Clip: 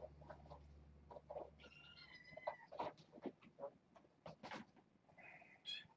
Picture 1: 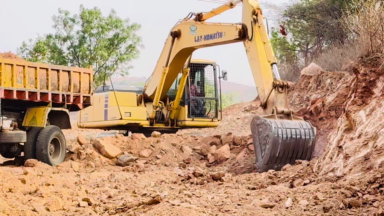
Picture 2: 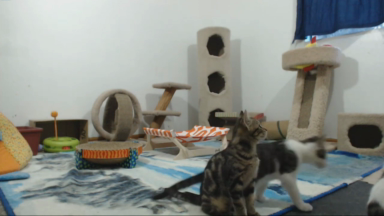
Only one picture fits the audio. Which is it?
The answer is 2